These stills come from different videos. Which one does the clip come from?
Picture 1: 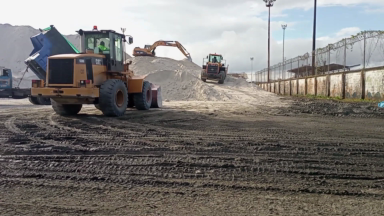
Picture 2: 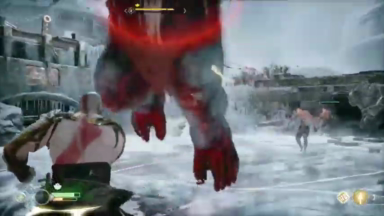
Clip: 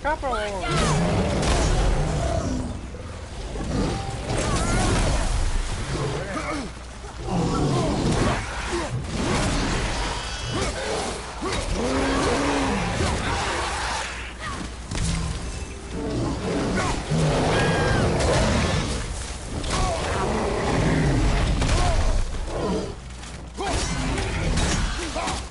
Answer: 2